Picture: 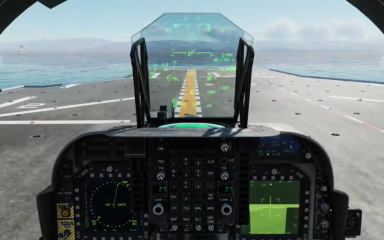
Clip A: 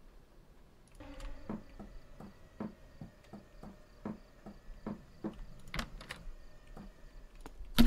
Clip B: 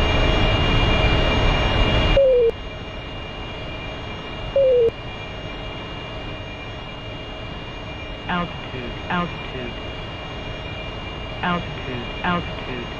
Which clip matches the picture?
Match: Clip B